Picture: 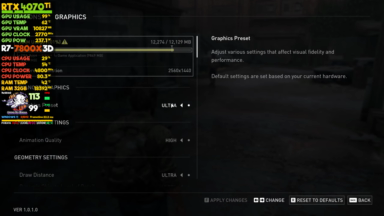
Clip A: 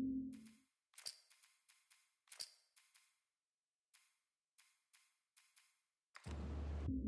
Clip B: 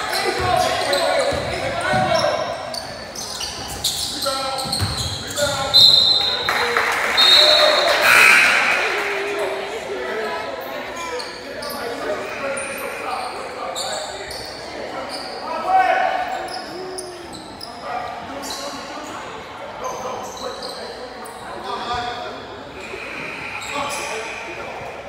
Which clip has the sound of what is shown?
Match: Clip A